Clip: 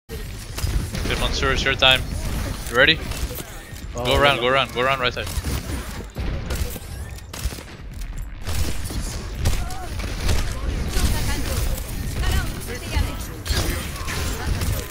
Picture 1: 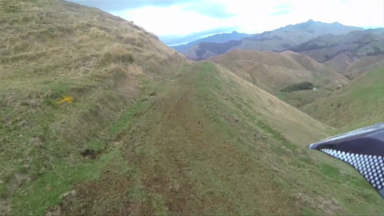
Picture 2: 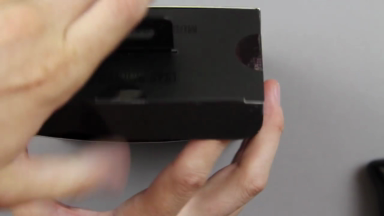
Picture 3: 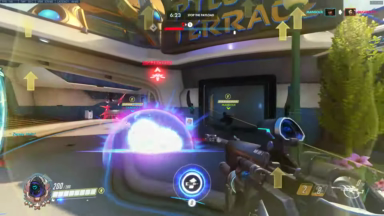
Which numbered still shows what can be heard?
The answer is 3